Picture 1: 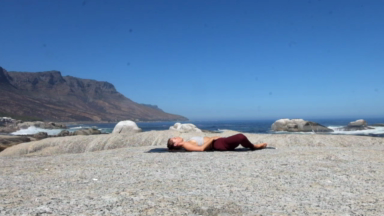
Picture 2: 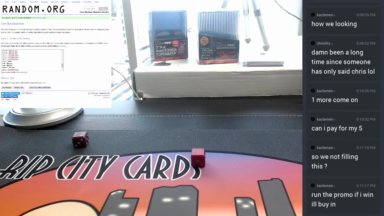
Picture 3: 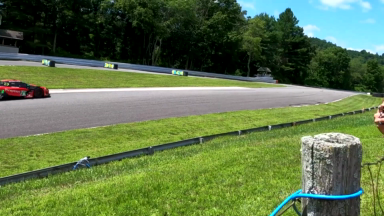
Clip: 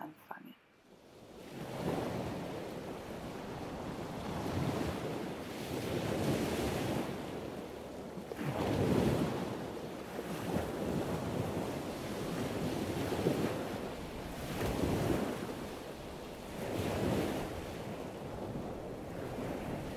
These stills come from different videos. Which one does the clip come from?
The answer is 1